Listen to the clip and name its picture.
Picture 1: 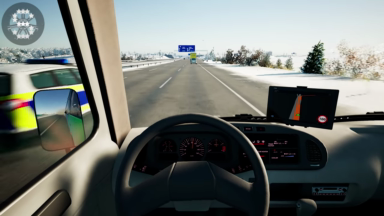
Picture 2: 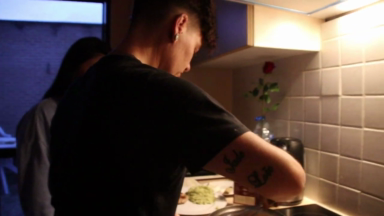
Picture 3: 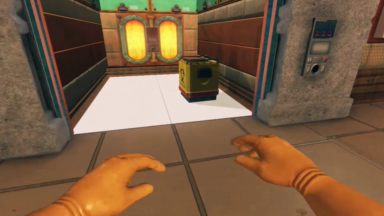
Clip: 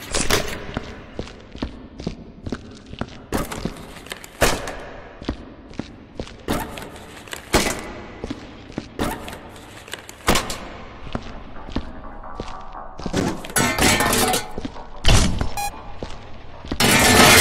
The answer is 3